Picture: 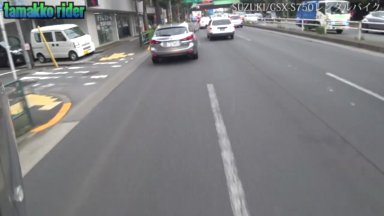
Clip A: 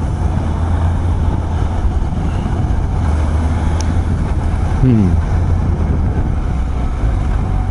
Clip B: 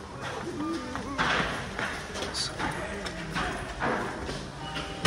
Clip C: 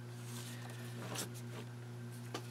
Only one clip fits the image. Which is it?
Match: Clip A